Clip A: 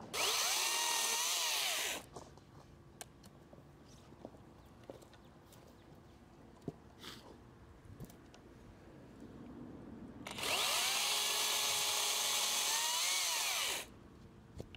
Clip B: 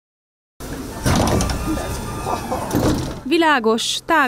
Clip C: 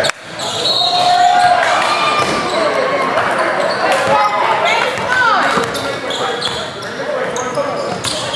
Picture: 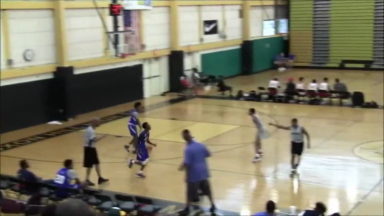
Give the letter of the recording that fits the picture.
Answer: C